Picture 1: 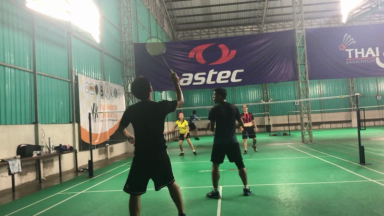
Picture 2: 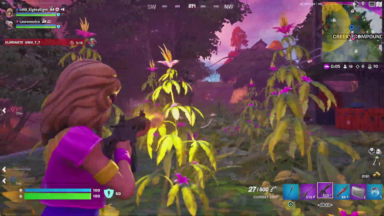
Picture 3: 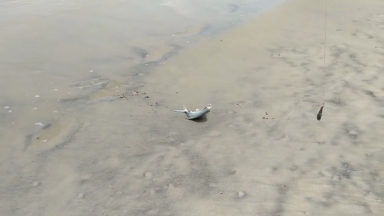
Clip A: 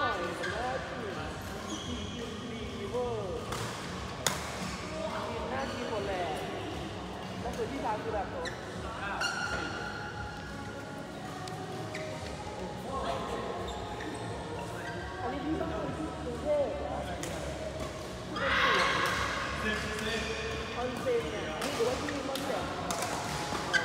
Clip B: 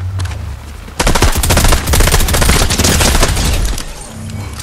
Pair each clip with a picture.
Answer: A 1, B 2